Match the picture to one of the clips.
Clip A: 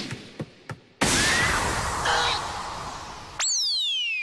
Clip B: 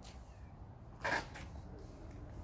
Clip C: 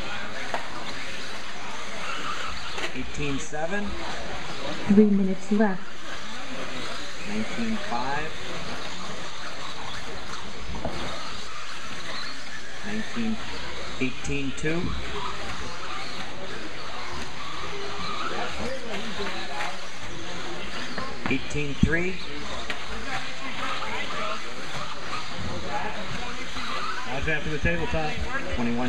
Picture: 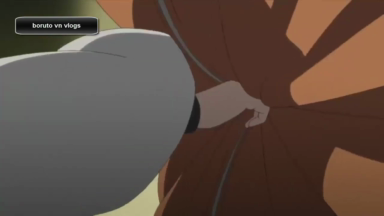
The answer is A